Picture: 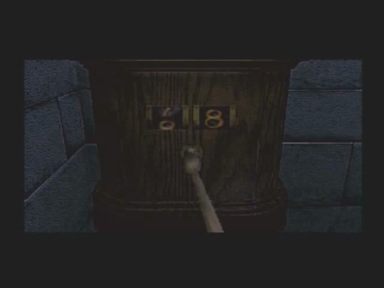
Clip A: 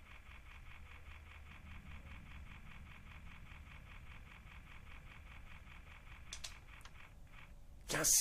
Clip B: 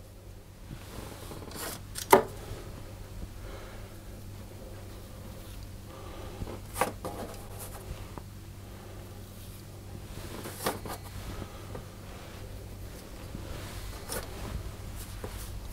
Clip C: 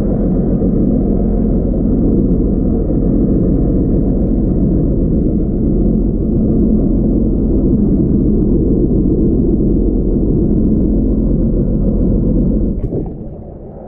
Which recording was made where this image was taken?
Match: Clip A